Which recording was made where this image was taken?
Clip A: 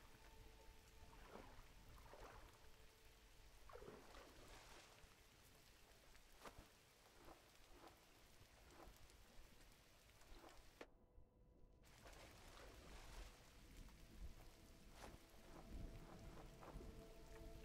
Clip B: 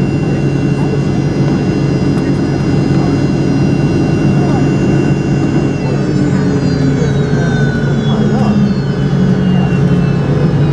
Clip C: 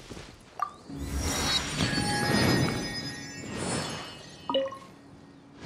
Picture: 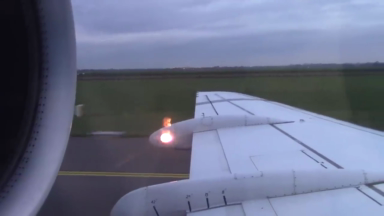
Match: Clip B